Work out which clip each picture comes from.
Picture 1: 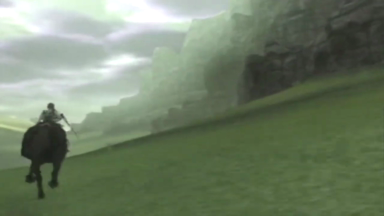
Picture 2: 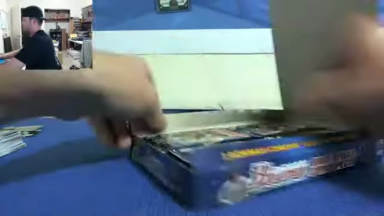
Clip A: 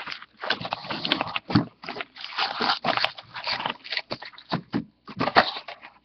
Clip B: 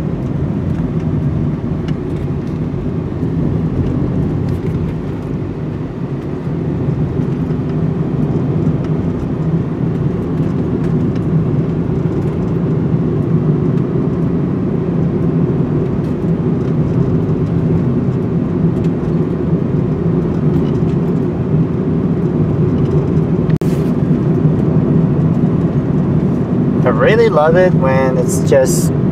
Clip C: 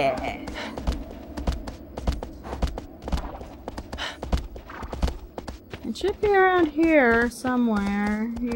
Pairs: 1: C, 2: A